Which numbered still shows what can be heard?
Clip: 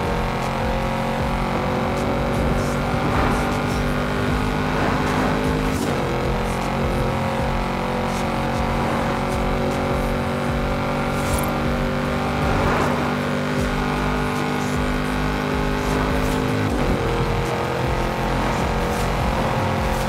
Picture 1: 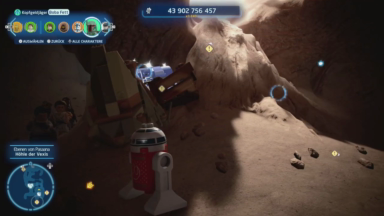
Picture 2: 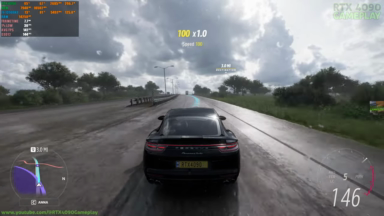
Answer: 2